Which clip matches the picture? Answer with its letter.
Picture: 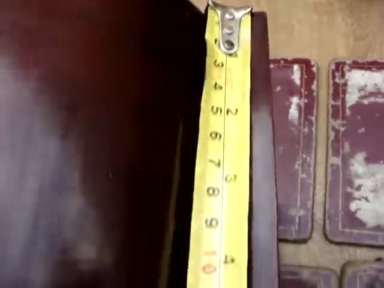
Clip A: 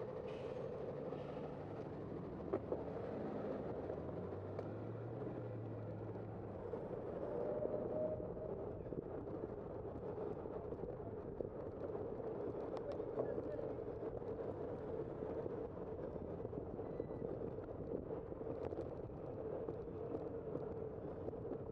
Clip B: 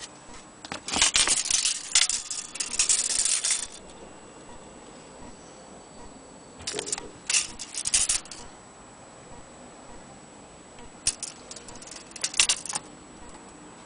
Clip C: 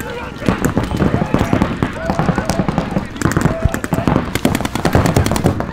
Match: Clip B